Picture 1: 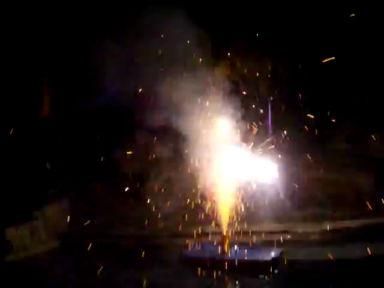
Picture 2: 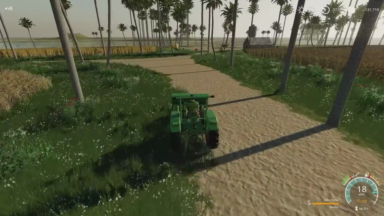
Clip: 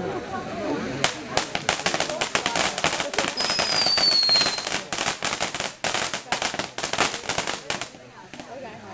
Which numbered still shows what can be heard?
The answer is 1